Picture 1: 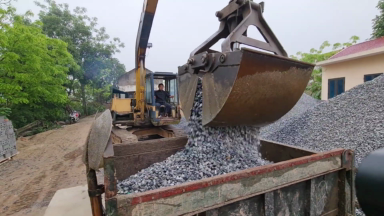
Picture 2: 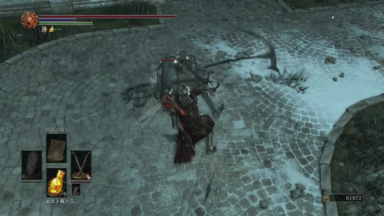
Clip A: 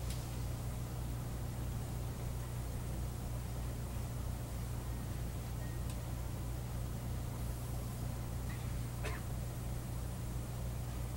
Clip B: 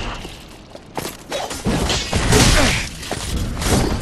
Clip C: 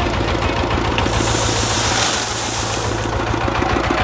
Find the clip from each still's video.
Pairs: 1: C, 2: B